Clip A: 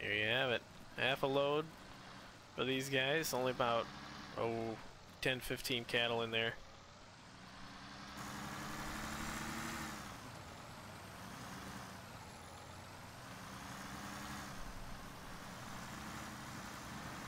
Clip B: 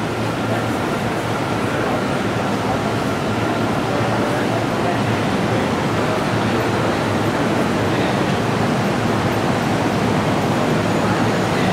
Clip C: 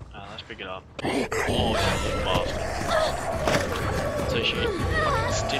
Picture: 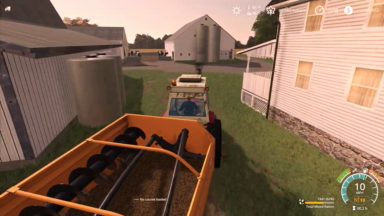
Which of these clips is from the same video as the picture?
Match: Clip A